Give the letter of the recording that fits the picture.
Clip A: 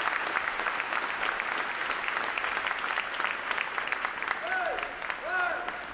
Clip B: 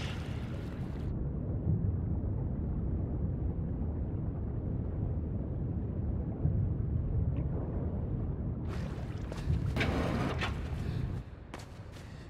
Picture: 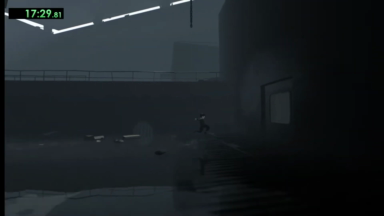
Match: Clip B